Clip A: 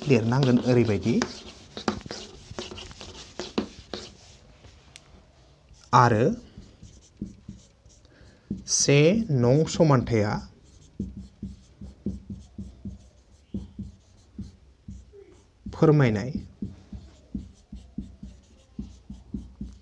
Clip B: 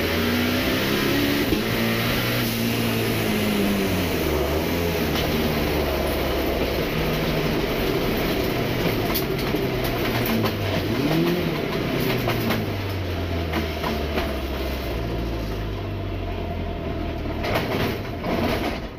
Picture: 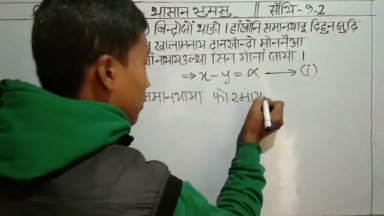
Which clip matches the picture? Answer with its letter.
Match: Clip A